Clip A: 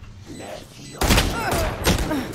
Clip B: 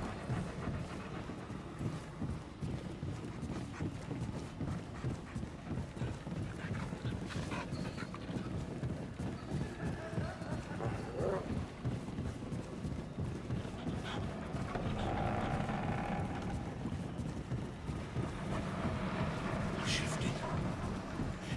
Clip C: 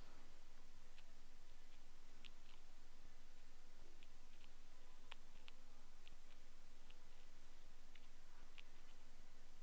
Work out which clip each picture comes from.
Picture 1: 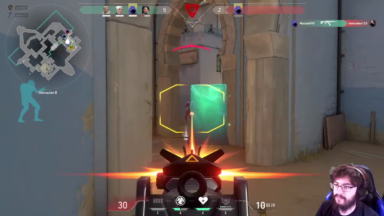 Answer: A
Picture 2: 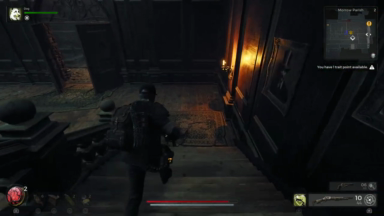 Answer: B